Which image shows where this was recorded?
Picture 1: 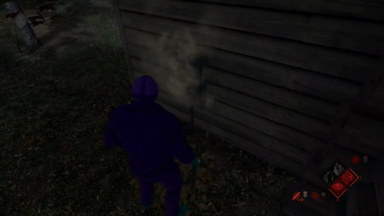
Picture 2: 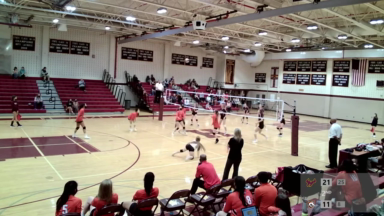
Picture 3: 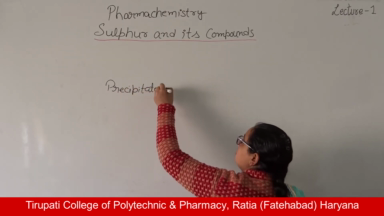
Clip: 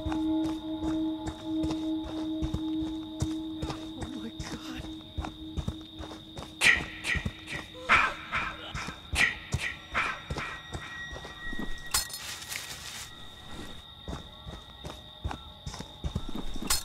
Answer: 1